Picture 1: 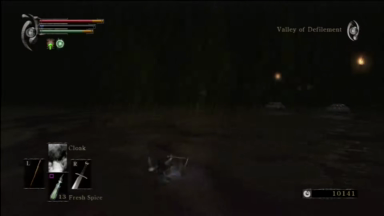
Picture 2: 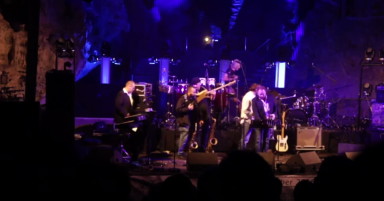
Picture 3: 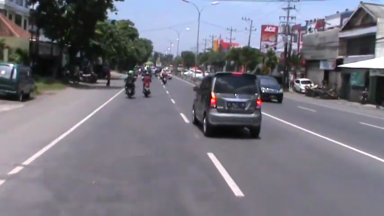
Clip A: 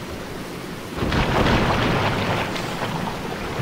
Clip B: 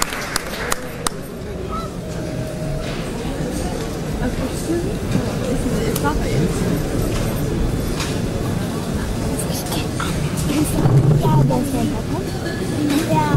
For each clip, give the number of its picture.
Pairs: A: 1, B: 2